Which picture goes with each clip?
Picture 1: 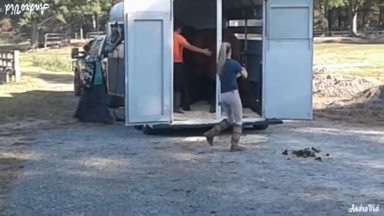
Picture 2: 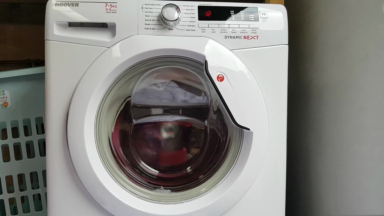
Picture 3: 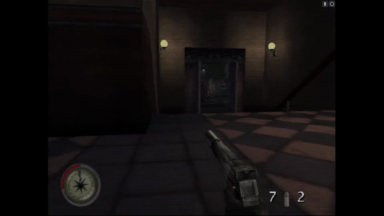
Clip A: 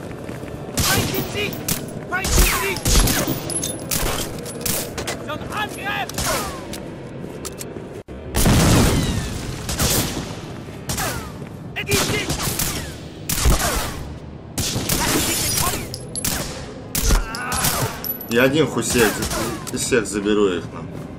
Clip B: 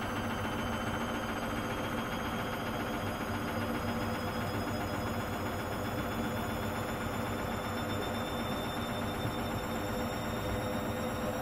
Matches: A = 3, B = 2